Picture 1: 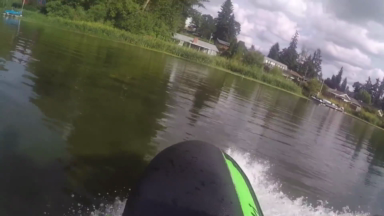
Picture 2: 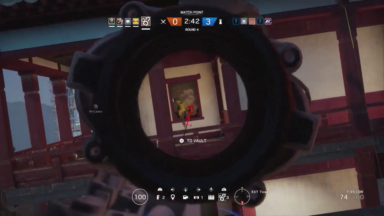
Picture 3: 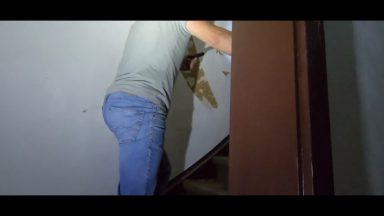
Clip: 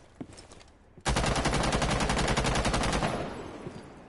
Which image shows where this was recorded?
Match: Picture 2